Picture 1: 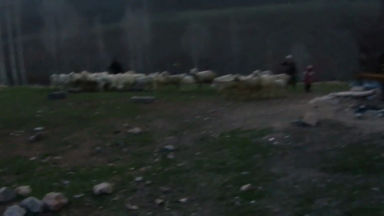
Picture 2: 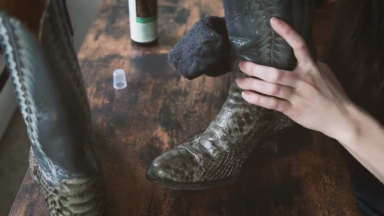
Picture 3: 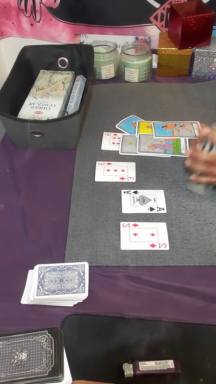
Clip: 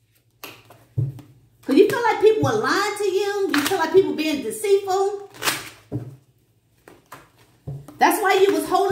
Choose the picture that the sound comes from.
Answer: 3